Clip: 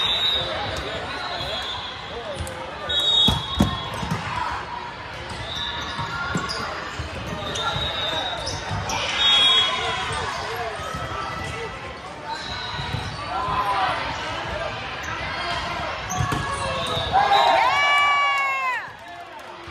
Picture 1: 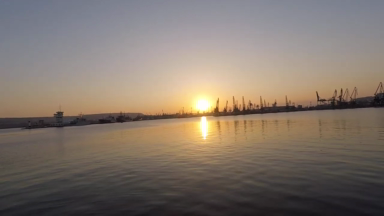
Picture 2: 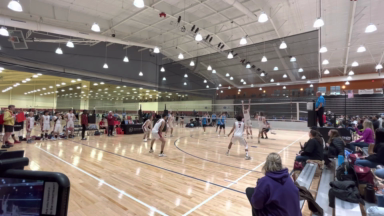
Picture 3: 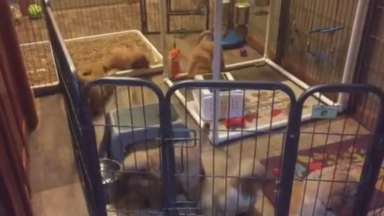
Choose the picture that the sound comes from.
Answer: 2